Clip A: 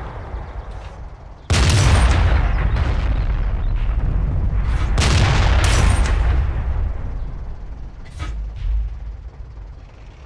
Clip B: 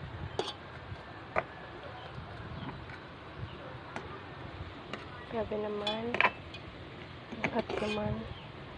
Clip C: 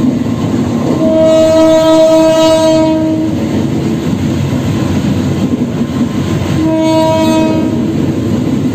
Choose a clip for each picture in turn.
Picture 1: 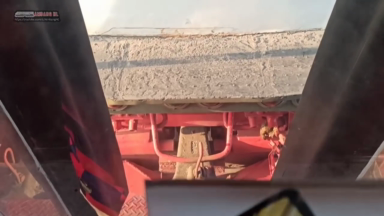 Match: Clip C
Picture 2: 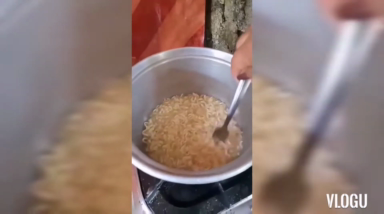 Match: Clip B